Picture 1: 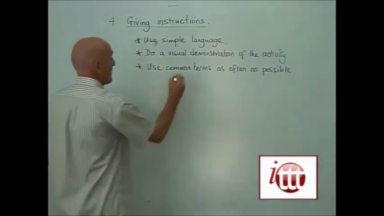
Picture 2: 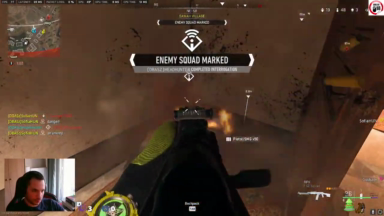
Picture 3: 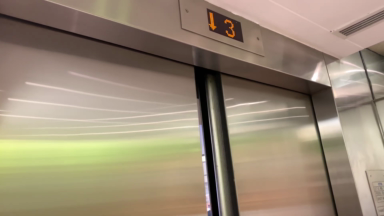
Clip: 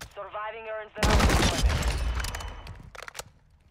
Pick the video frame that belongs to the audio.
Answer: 2